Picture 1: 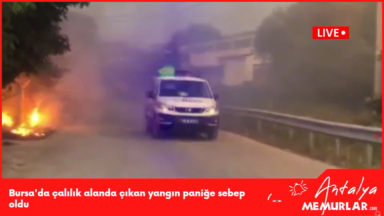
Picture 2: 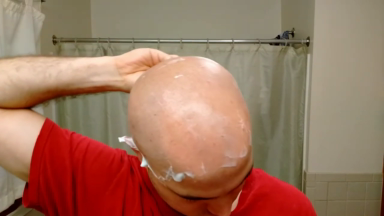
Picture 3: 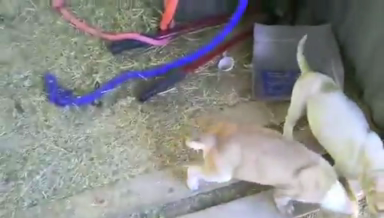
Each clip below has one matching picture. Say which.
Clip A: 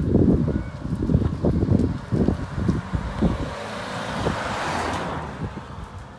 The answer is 1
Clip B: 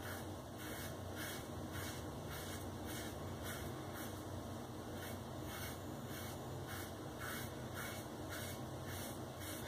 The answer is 2